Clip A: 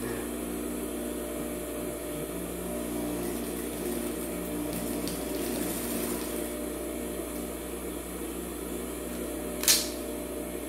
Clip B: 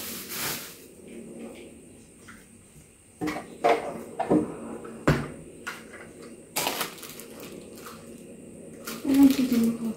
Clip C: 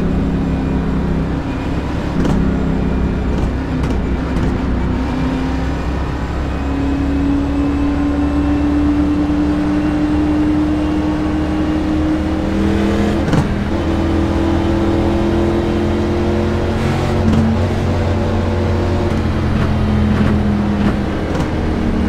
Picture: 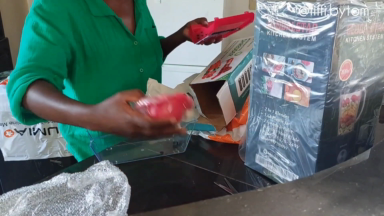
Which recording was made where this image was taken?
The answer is B